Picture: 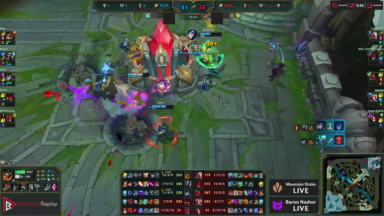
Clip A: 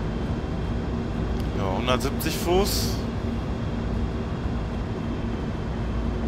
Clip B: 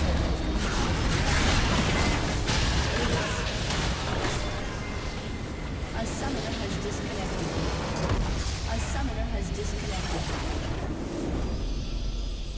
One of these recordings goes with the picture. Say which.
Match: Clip B